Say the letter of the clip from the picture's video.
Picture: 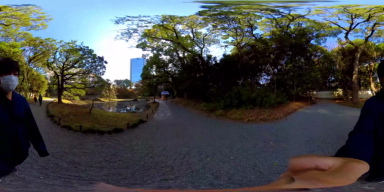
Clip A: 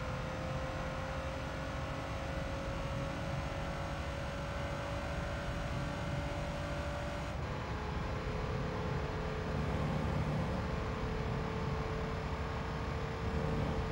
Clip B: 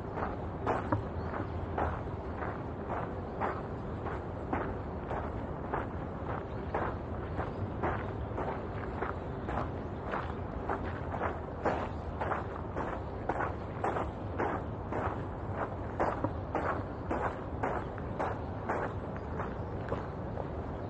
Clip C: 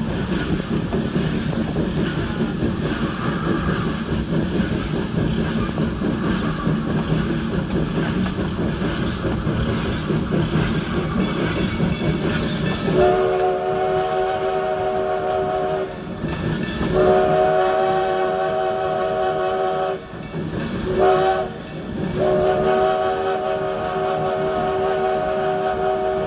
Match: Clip B